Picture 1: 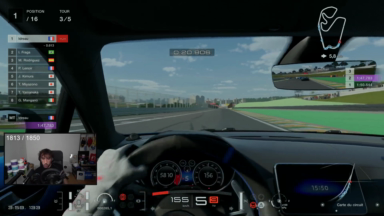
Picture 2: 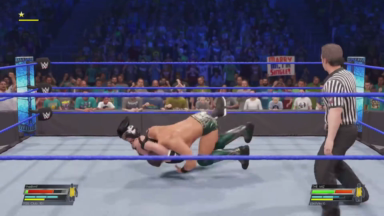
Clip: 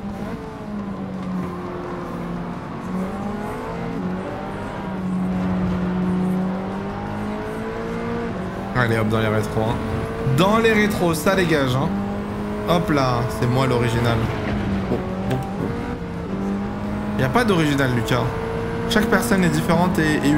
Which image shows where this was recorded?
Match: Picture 1